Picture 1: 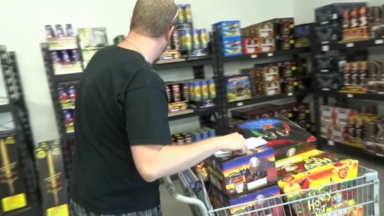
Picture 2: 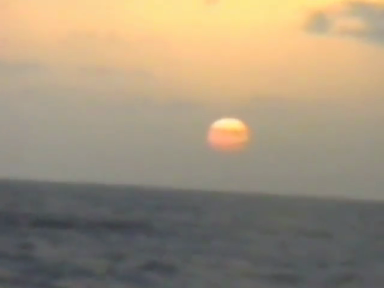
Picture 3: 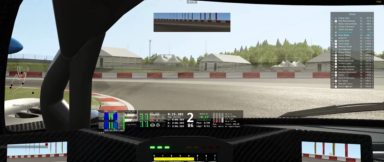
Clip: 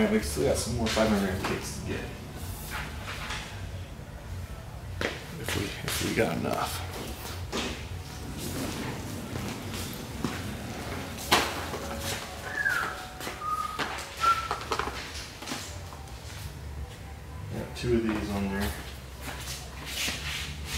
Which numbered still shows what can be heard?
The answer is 1